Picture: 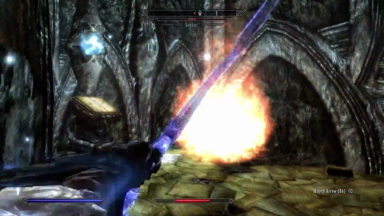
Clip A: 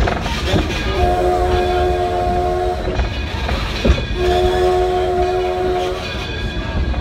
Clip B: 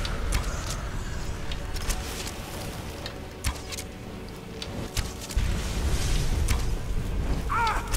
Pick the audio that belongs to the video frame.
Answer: B